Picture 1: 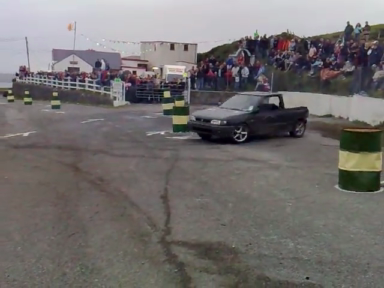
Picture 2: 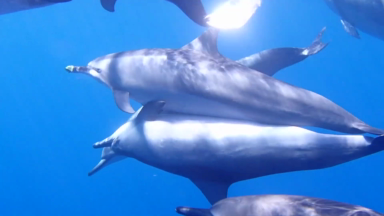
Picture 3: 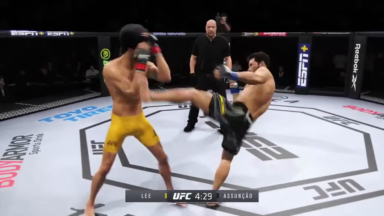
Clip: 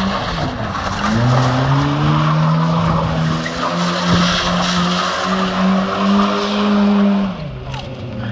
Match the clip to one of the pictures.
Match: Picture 1